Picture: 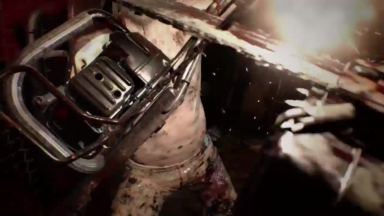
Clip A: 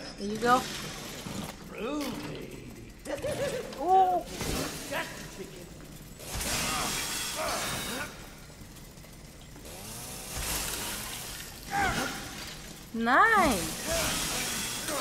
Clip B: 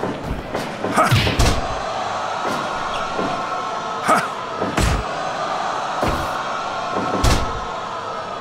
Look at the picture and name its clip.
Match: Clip A